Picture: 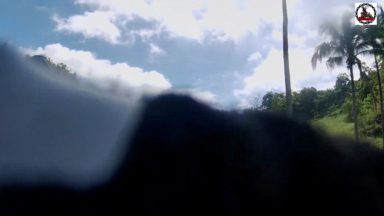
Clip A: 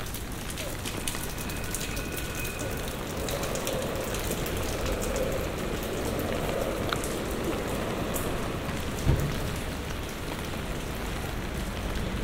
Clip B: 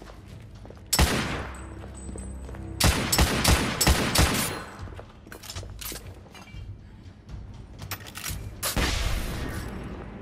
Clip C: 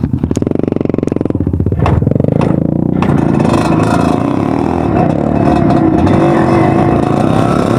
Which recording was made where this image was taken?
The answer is C